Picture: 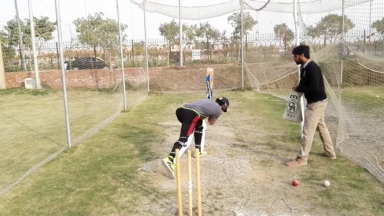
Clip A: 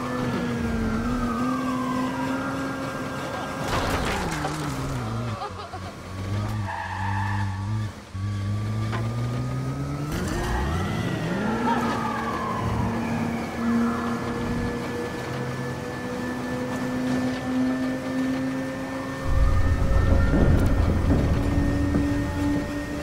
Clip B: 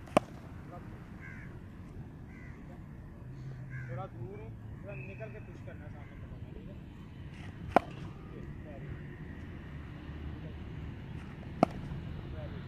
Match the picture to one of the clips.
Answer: B